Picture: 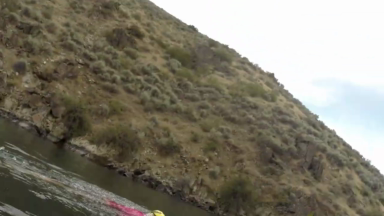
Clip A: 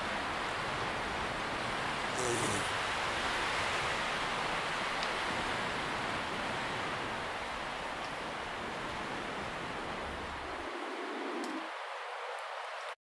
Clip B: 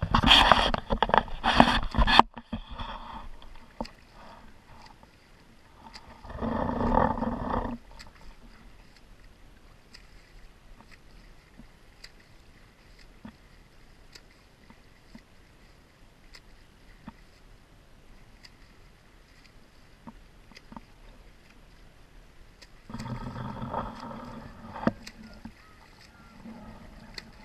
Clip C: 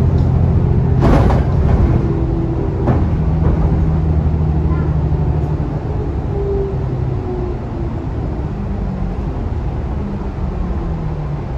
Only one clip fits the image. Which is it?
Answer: B